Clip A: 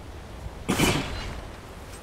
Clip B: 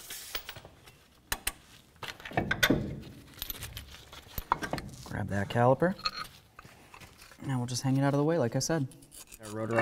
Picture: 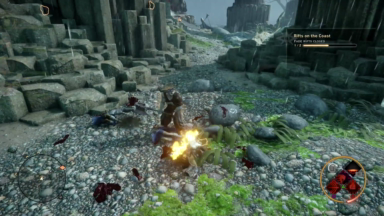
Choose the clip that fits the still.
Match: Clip A